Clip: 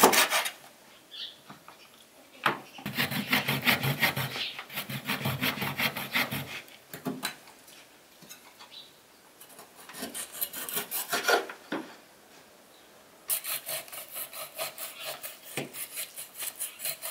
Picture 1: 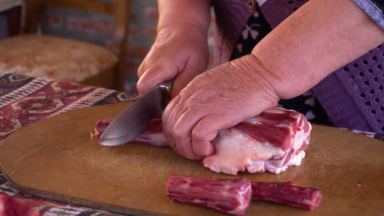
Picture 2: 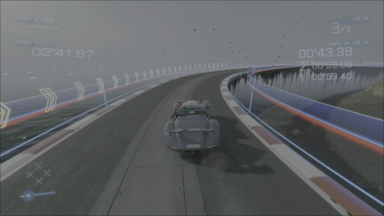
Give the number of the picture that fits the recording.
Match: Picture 1